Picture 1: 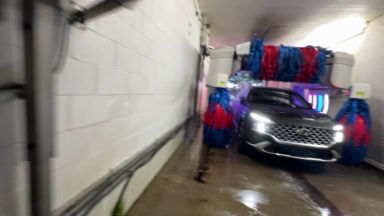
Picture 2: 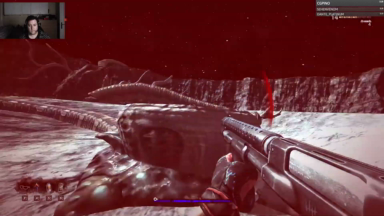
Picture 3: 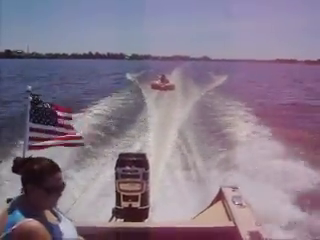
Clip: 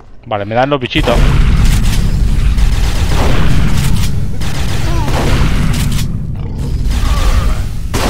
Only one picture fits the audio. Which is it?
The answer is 2